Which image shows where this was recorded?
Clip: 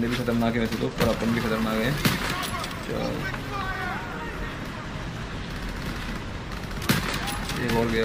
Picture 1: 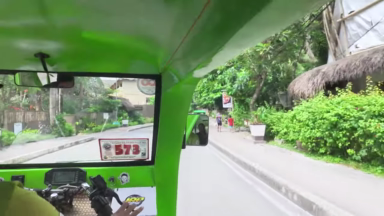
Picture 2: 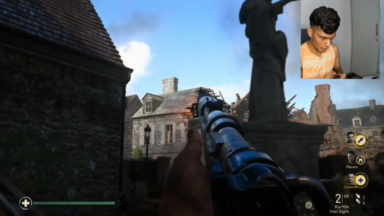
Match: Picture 2